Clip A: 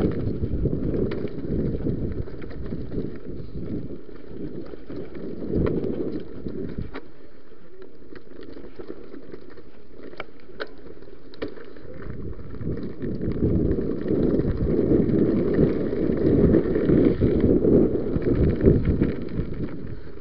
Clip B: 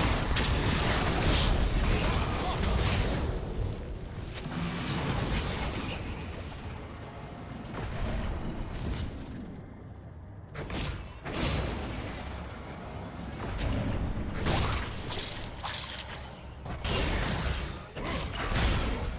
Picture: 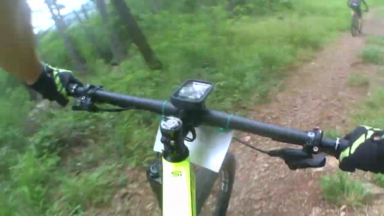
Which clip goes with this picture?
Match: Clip A